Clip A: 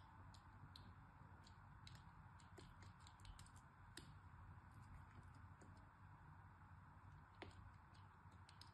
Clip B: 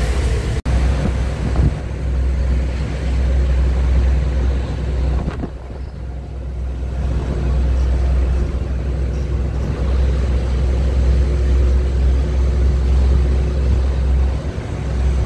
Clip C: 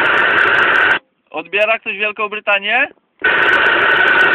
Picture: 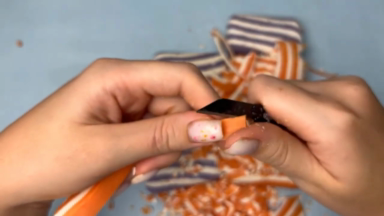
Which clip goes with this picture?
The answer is A